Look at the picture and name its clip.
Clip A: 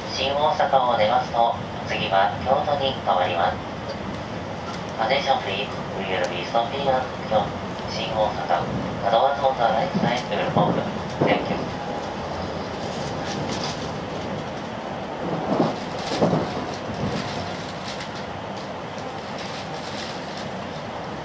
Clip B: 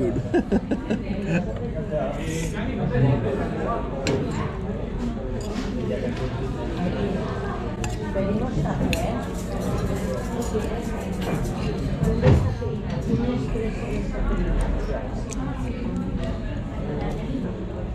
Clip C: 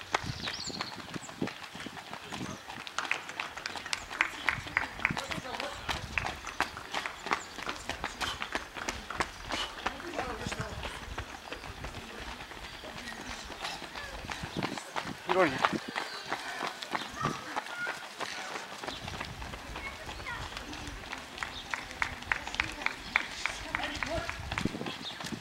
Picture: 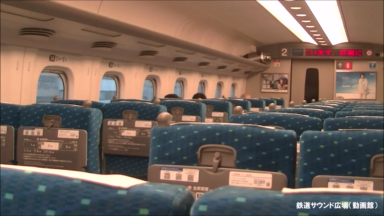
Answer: A